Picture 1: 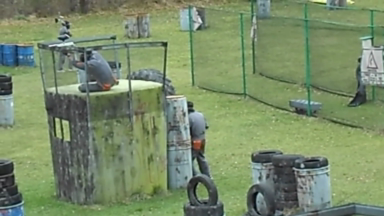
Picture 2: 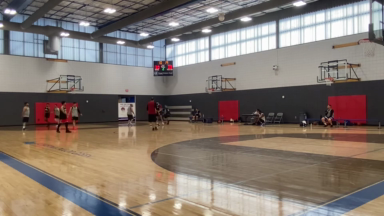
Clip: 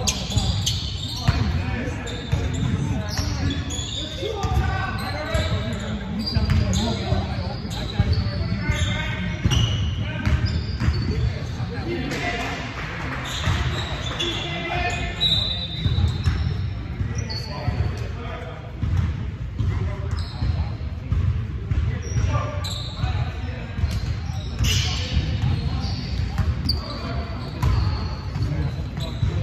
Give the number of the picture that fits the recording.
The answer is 2